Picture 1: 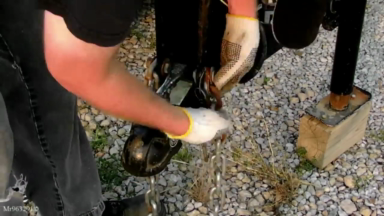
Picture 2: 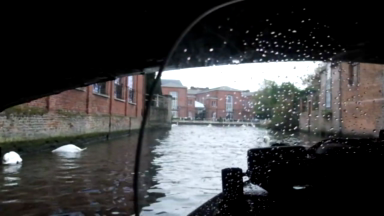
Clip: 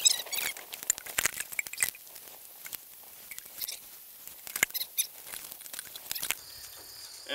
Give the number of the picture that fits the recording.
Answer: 1